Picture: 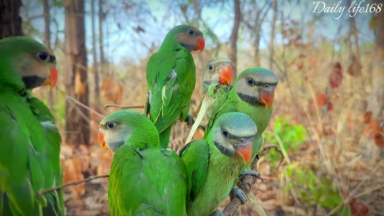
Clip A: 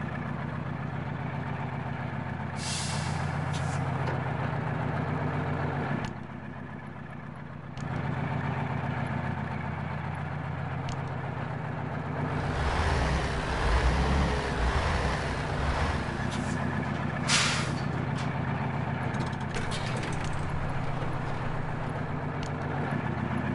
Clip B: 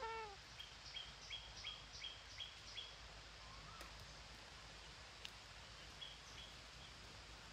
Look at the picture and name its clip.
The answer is B